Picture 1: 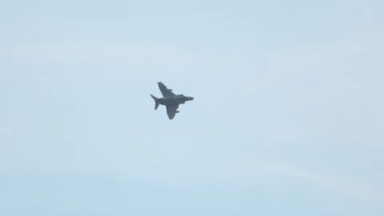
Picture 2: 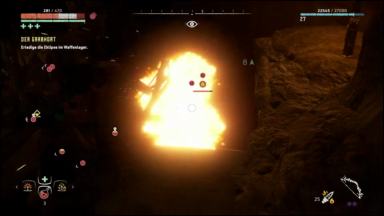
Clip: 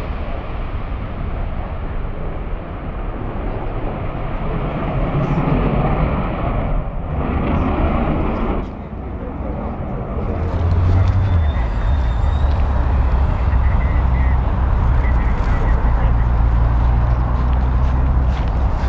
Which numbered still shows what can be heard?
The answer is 1